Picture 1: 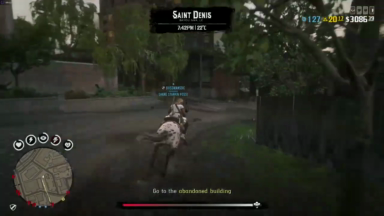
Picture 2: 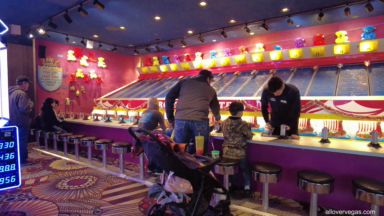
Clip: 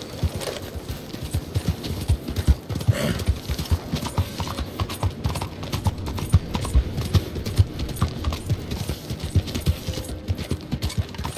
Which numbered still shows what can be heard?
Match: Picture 1